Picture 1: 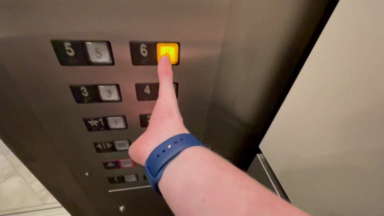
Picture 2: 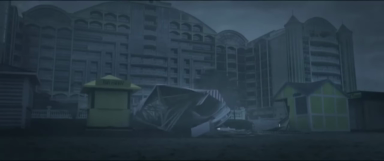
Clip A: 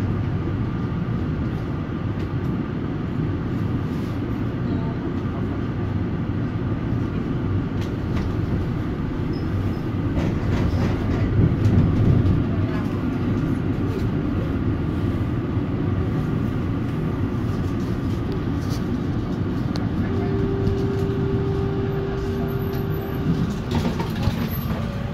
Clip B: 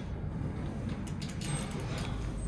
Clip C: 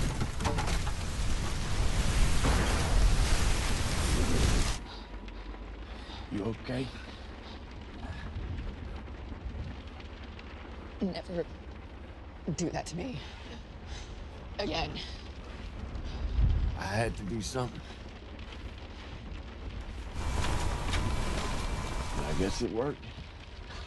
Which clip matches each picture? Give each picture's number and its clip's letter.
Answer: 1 B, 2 C